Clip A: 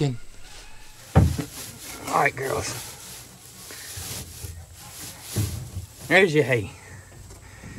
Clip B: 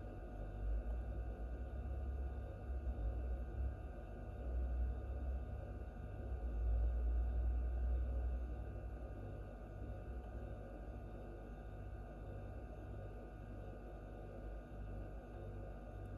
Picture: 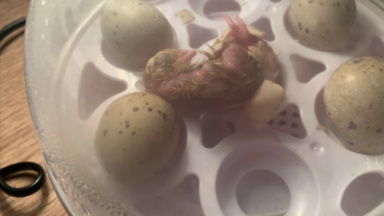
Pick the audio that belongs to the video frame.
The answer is B